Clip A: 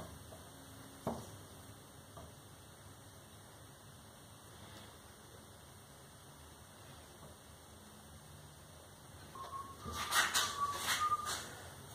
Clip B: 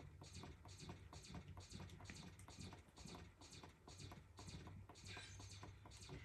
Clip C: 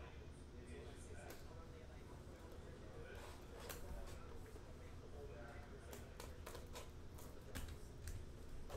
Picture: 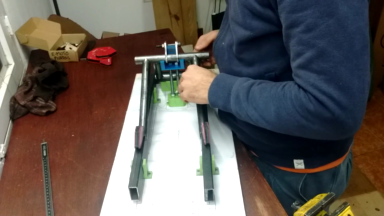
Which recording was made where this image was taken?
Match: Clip A